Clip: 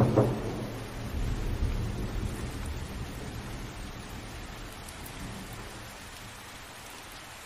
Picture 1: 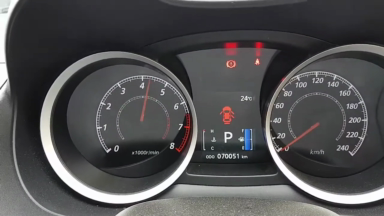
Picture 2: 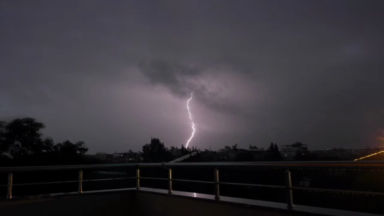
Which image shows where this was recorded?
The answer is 2